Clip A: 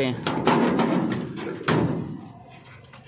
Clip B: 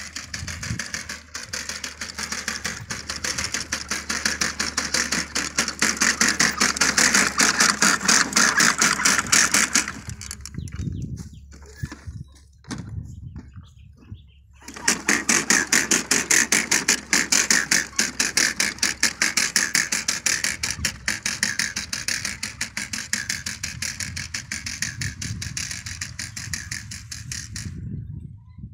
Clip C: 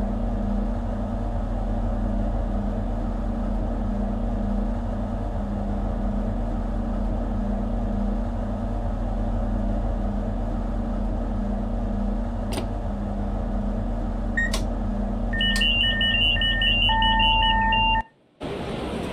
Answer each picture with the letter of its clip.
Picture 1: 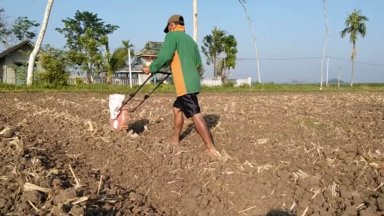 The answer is B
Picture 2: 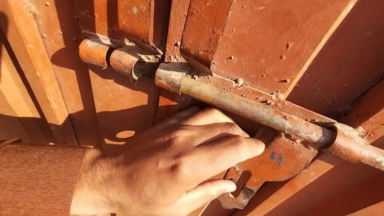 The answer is A